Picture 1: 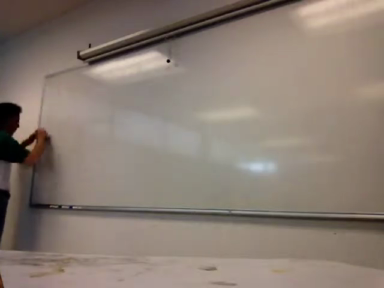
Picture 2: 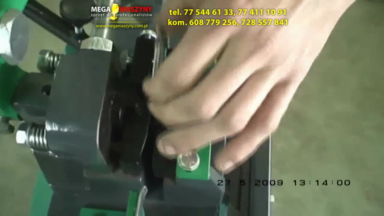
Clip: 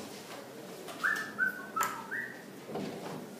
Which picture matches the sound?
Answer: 1